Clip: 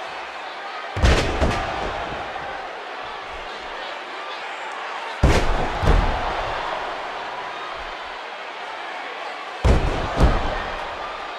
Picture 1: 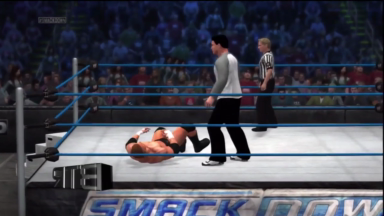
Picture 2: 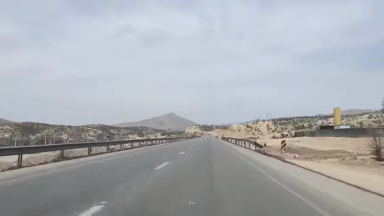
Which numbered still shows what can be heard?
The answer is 1